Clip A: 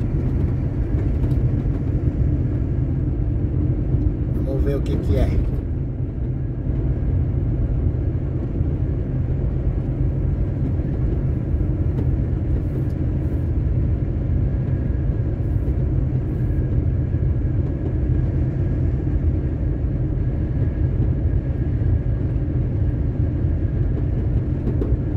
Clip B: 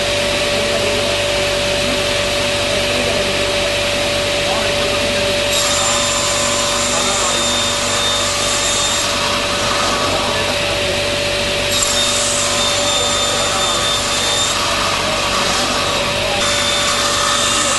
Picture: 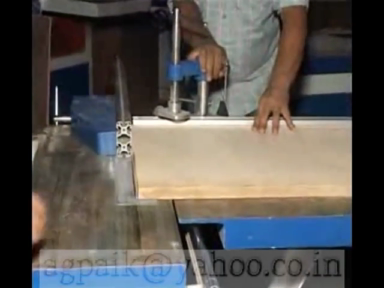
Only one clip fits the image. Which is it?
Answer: B